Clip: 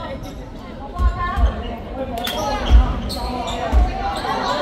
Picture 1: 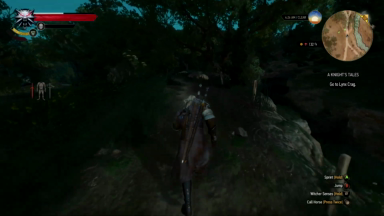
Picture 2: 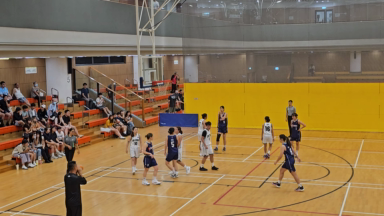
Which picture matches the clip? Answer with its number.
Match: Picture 2